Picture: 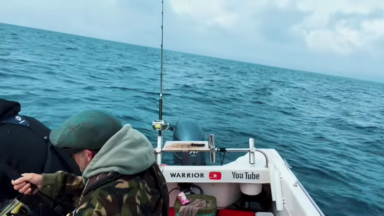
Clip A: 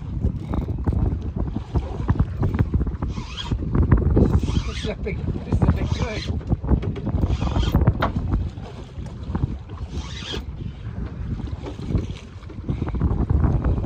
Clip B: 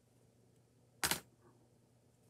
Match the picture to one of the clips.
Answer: A